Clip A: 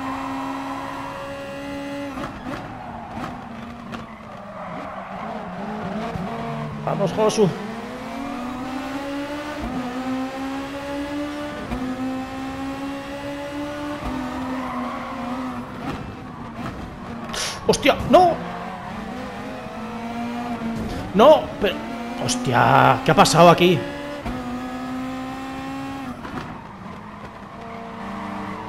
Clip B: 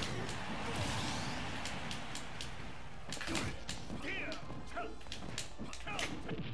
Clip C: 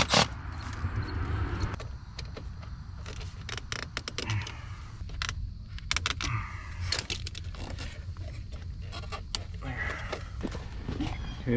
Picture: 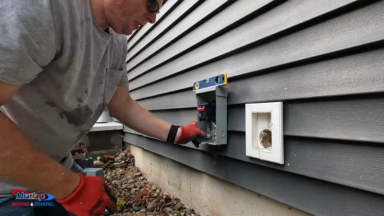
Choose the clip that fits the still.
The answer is C